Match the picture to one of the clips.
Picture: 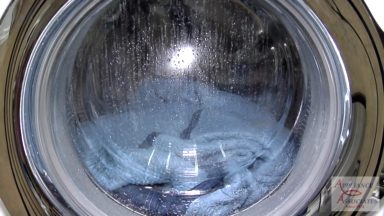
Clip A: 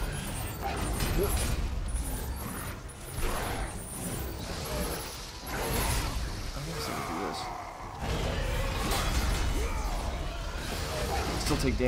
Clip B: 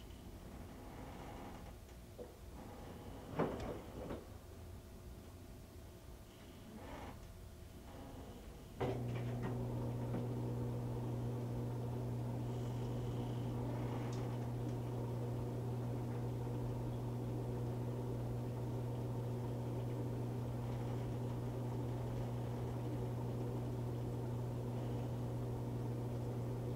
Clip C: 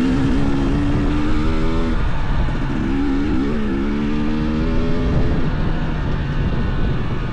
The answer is B